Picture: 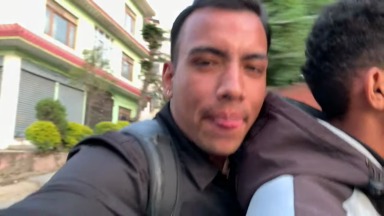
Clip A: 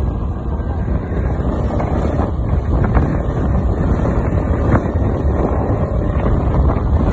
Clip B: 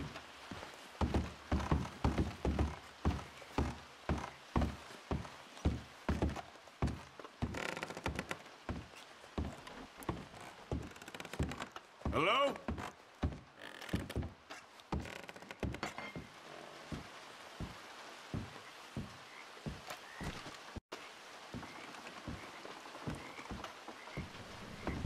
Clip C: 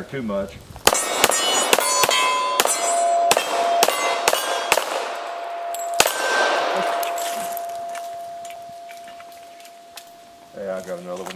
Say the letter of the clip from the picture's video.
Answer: A